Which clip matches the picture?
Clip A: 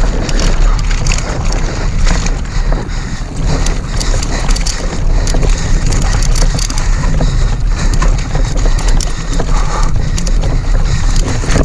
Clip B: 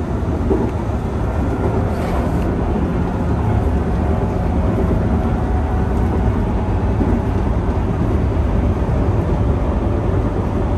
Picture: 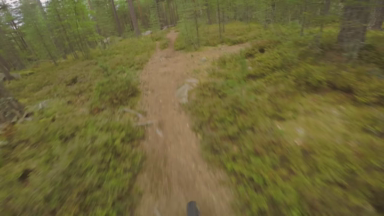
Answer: A